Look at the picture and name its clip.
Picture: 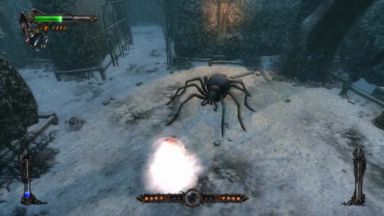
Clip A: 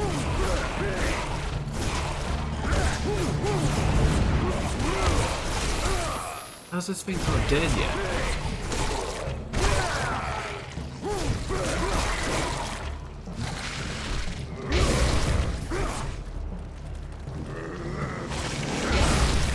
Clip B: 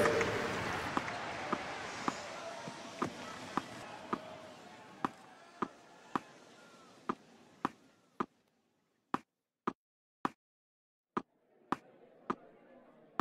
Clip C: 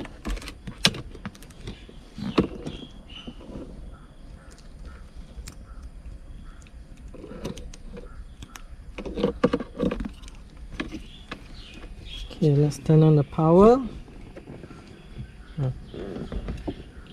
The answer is A